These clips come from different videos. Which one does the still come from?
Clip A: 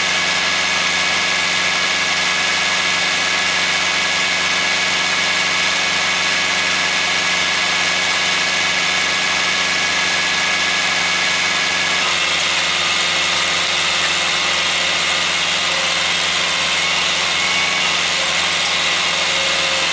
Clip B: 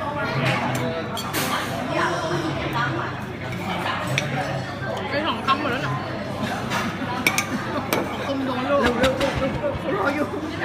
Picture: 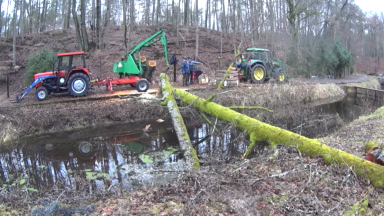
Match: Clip A